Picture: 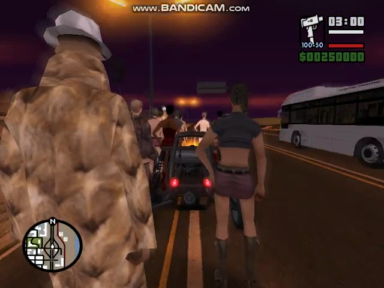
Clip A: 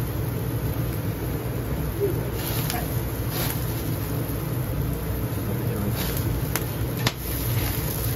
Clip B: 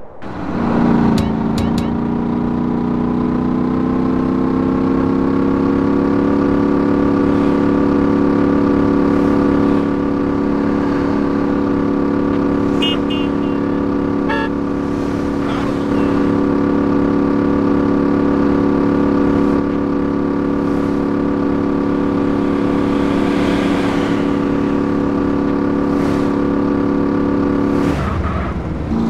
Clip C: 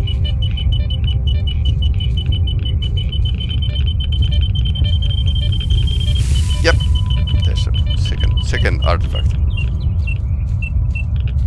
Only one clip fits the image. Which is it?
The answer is B